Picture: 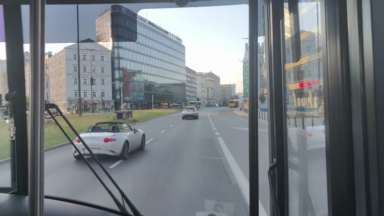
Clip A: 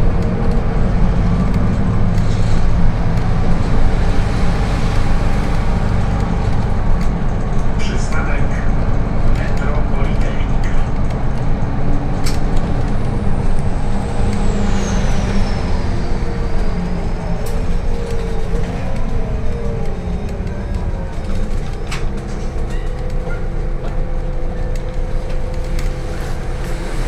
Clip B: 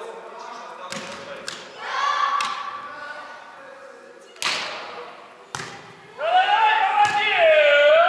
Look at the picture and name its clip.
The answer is A